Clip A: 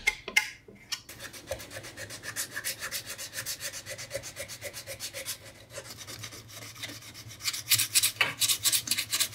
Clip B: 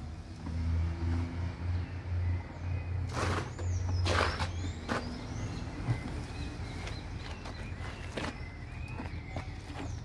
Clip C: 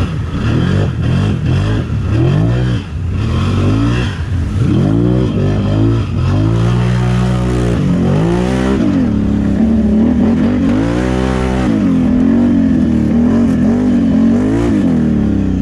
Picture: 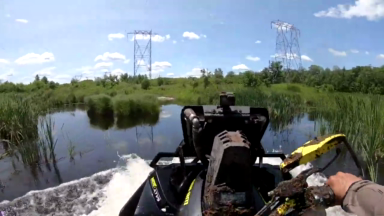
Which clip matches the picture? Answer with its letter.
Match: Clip C